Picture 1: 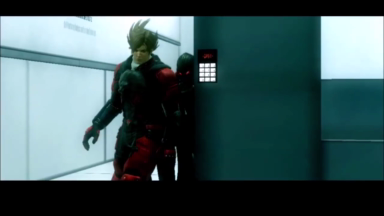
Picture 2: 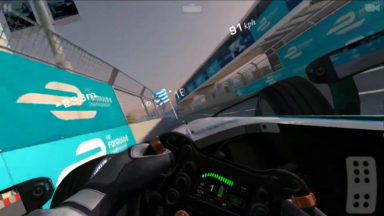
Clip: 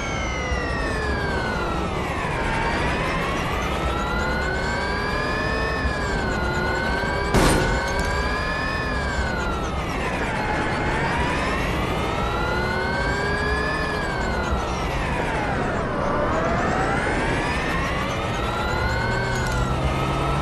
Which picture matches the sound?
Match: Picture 2